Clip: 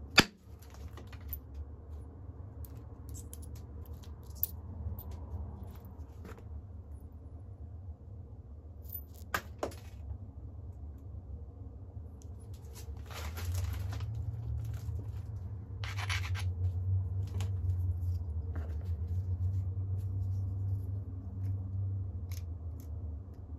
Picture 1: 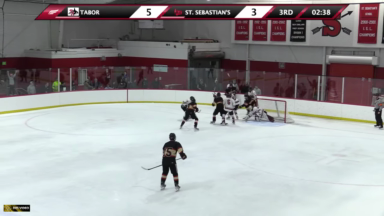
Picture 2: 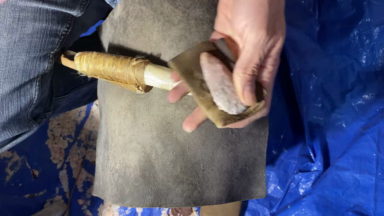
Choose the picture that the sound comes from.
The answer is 2